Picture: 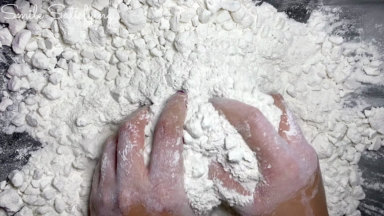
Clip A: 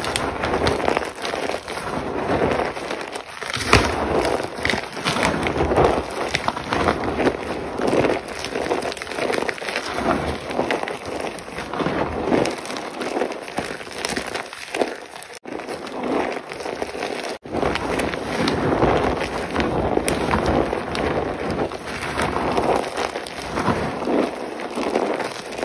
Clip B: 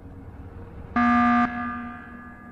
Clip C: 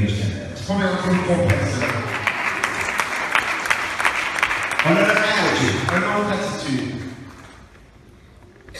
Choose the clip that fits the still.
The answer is A